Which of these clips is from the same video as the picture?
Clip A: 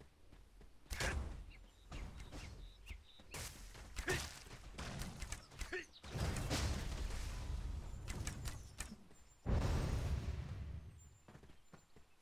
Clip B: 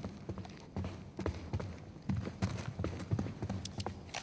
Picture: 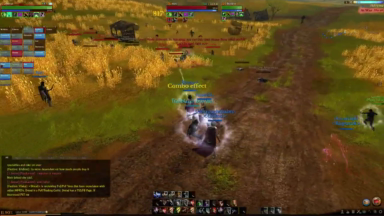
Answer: A